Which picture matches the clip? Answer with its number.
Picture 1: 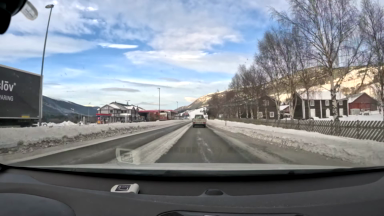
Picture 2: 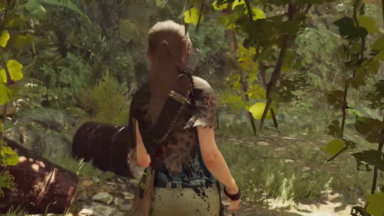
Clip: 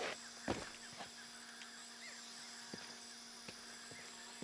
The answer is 2